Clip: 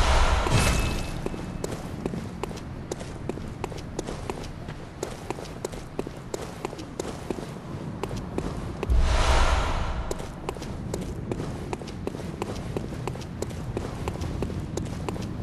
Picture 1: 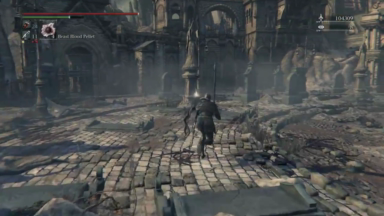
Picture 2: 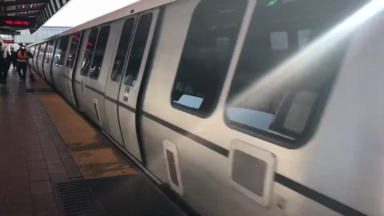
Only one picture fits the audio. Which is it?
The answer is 1